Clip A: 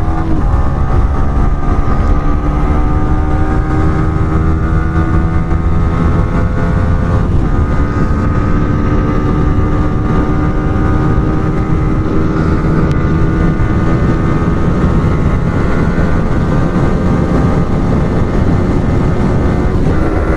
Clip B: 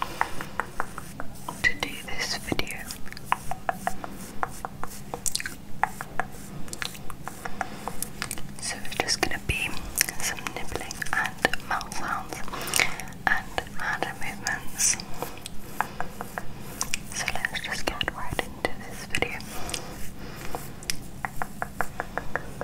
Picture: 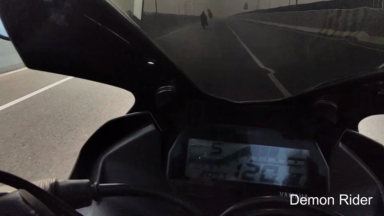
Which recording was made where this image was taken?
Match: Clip A